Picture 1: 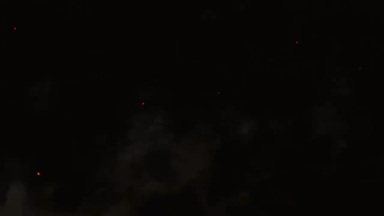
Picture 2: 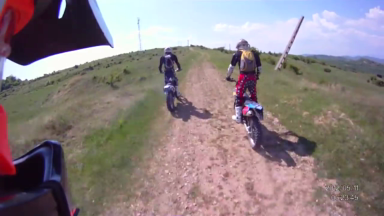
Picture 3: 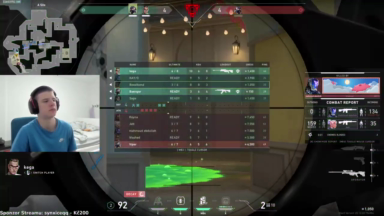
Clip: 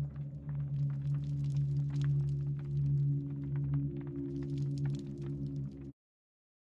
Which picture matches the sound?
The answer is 1